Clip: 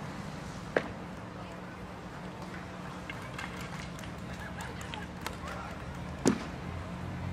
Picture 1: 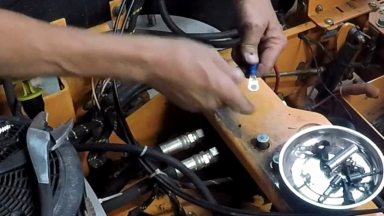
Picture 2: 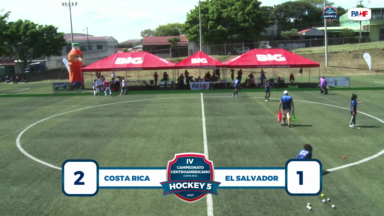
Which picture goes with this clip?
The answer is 2